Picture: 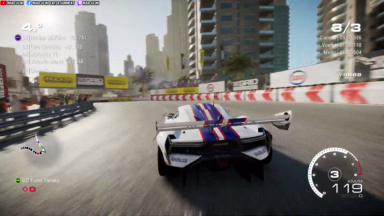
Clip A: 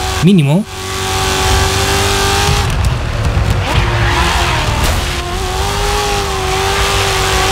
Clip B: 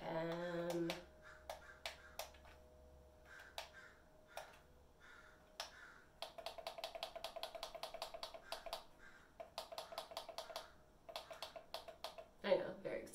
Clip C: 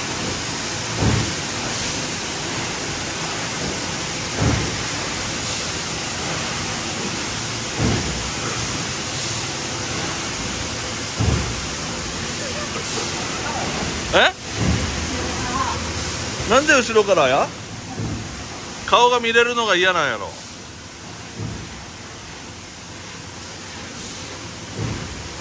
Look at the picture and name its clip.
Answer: A